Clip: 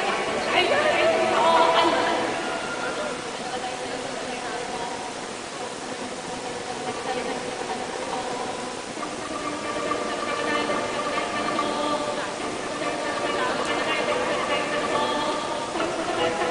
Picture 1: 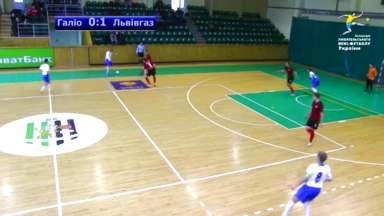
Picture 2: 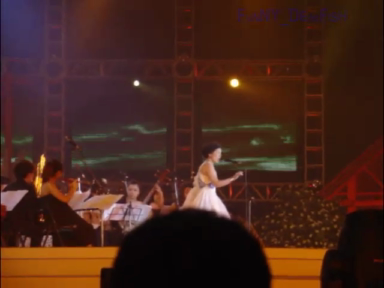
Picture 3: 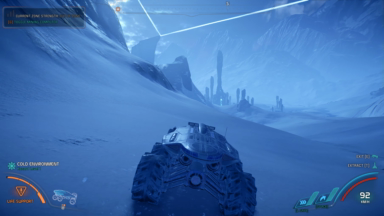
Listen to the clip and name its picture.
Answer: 2